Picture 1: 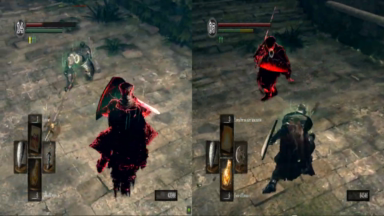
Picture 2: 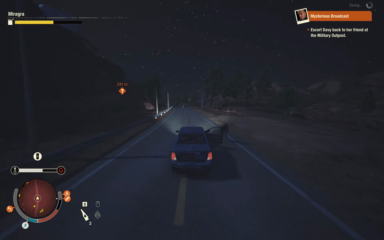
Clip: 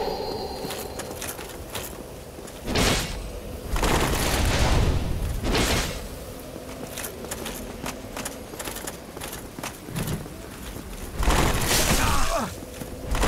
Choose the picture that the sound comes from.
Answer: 1